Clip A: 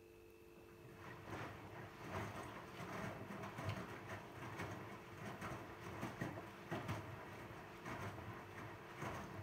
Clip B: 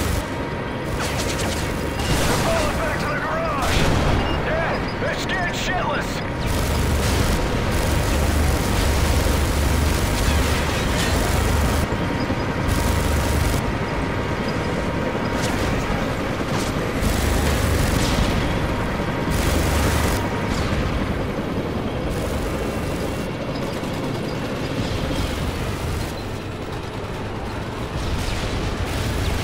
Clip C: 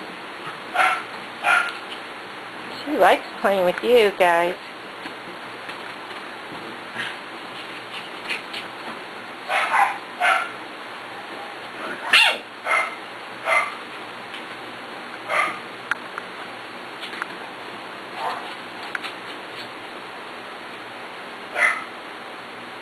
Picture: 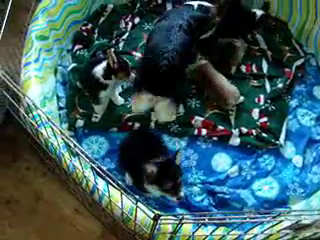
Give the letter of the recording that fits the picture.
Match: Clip C